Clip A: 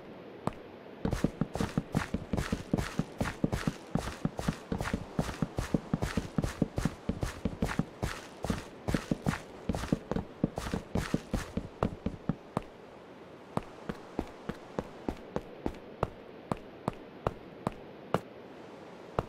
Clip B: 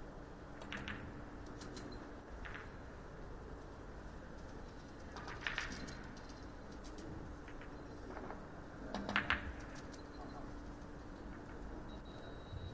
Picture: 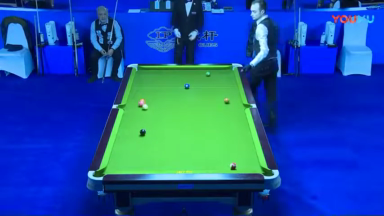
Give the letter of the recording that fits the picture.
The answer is B